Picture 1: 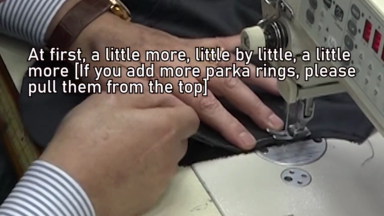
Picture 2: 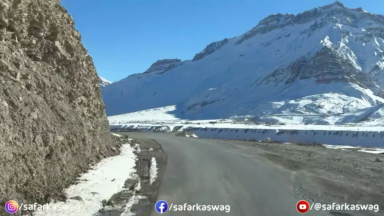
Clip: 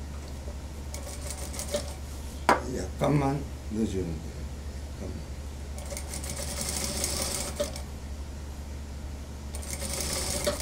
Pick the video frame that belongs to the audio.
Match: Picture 1